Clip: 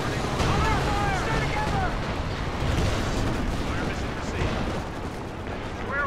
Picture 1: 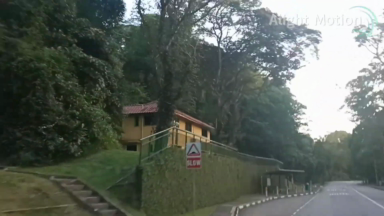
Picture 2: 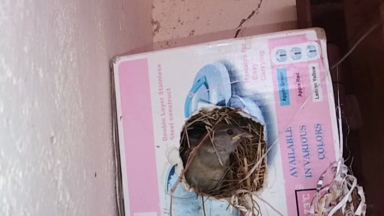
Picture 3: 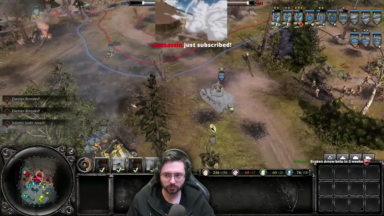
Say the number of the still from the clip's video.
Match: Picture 3